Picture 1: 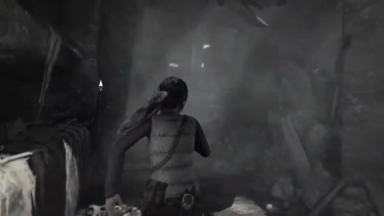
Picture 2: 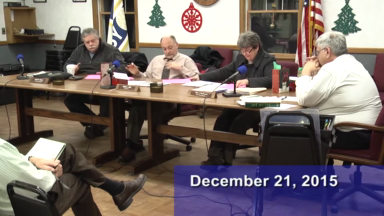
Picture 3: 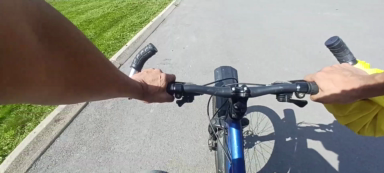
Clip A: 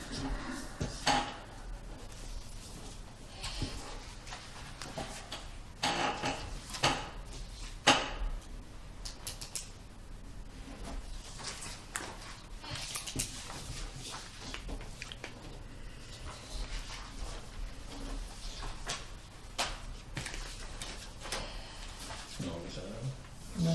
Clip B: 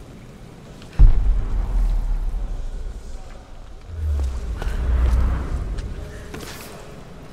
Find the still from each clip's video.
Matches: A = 2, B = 1